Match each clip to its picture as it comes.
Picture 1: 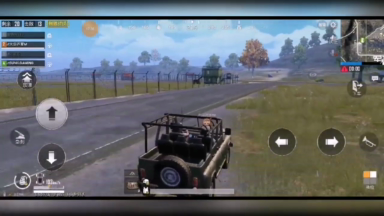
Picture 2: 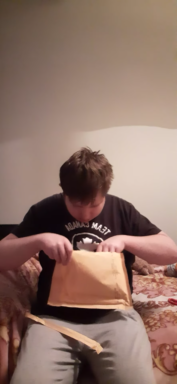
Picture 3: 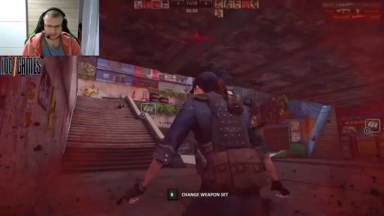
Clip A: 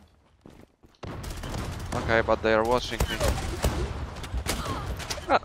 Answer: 3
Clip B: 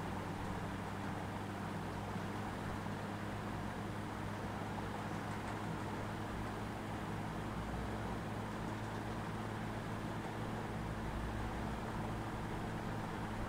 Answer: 1